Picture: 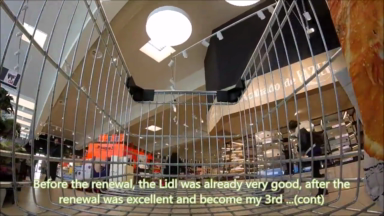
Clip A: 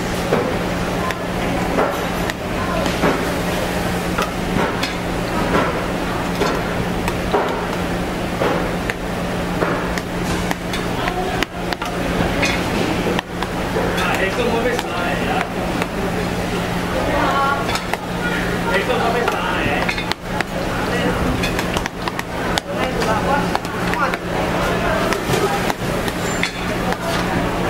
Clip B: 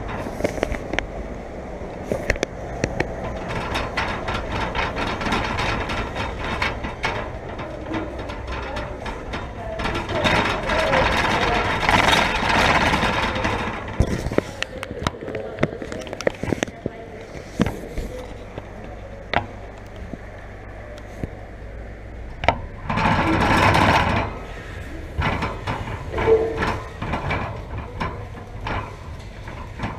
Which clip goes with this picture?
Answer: B